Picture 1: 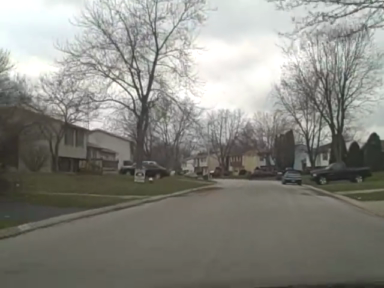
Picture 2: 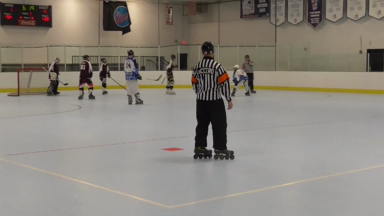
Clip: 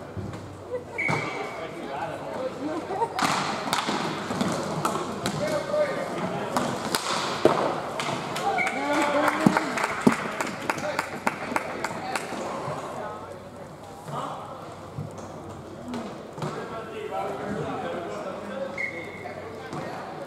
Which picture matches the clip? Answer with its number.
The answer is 2